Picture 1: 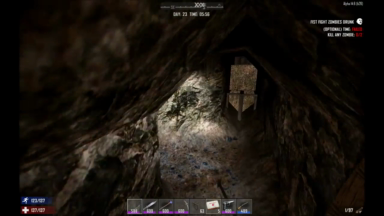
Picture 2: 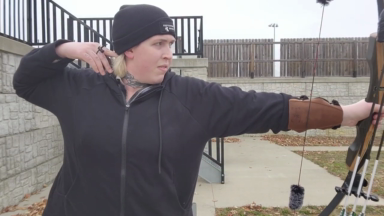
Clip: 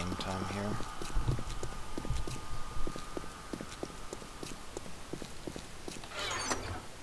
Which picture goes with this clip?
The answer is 1